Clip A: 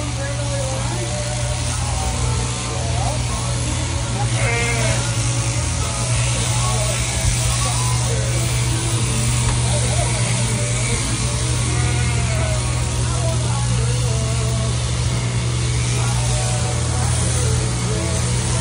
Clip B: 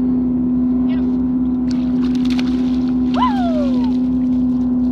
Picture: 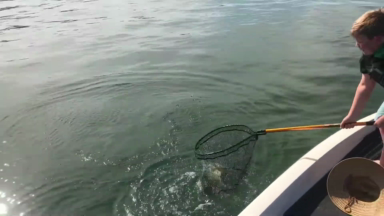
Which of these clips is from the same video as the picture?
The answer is B